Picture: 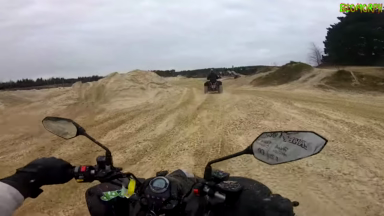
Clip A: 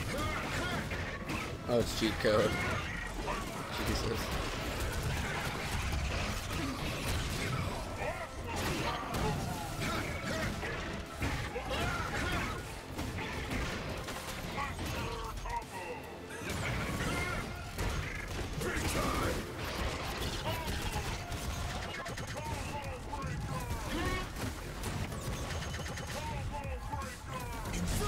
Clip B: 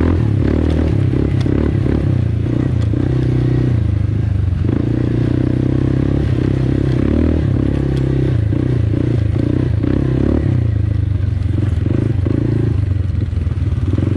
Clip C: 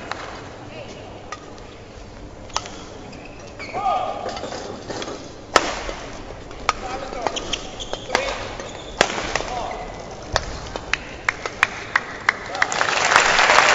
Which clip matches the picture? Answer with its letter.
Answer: B